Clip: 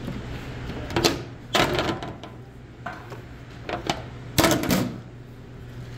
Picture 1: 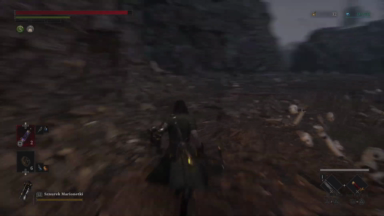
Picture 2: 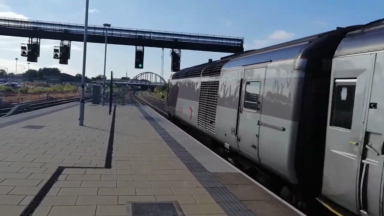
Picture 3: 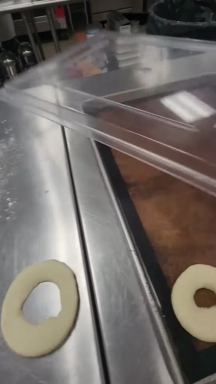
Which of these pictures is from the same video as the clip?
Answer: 3